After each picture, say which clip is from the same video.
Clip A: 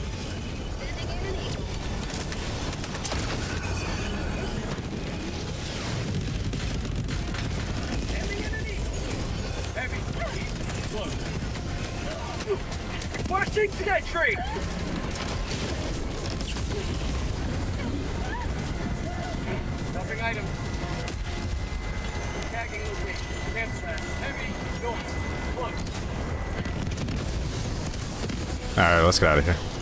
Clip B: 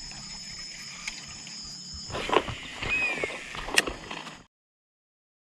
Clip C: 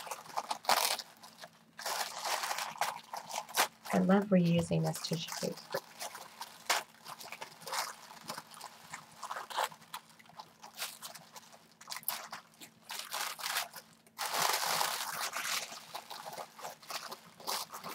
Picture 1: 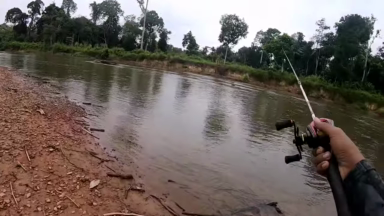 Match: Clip B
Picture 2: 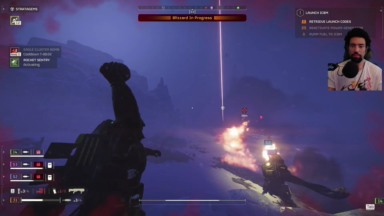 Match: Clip A